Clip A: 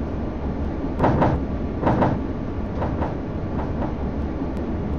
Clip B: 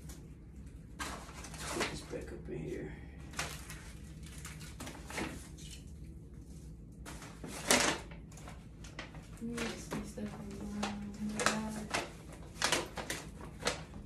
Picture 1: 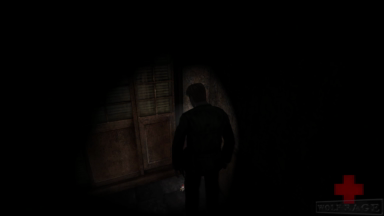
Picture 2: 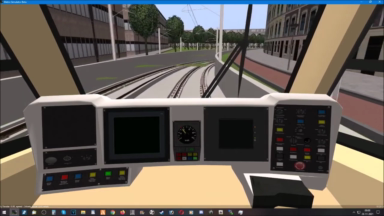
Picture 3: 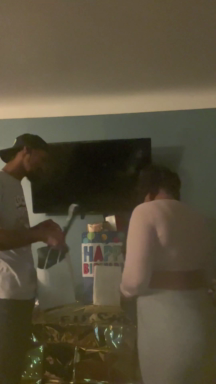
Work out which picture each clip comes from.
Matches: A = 2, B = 3